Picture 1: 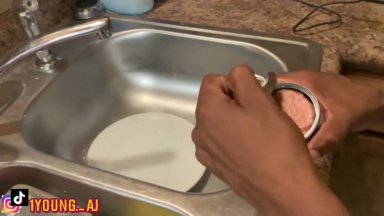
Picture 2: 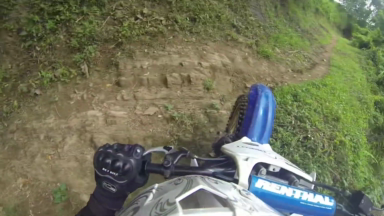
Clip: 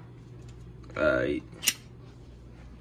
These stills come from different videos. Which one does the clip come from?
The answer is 1